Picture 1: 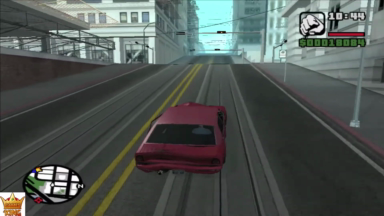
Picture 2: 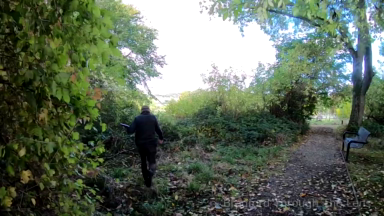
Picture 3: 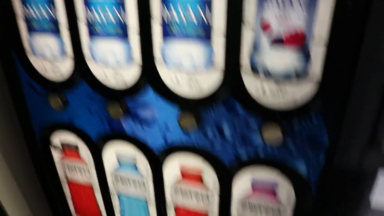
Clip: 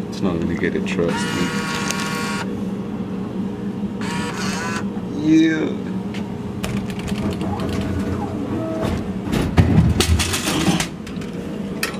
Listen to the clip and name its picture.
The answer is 3